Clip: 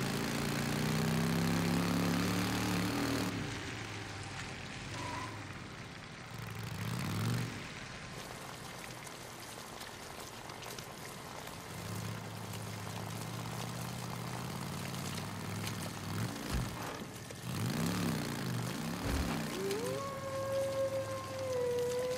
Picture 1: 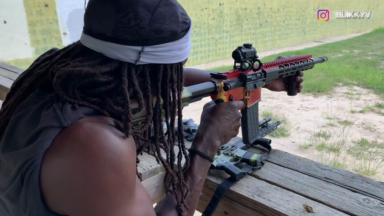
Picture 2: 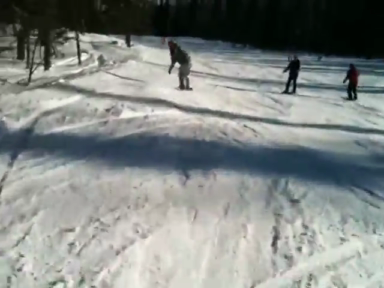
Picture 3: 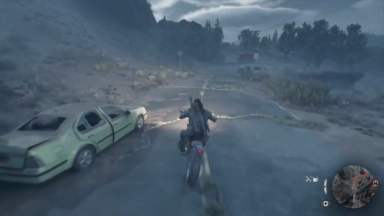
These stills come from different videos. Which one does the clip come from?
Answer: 3